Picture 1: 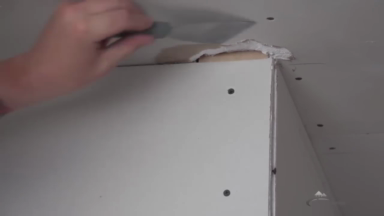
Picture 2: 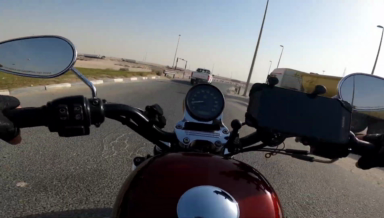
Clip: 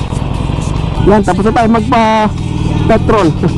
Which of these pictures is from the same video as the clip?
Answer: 2